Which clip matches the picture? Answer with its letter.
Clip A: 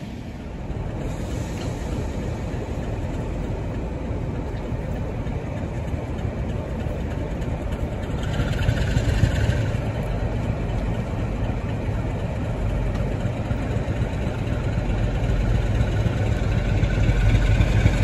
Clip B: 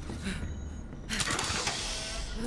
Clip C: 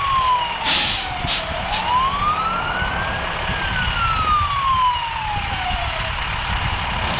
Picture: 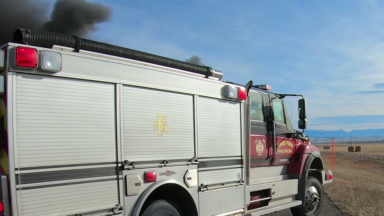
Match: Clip C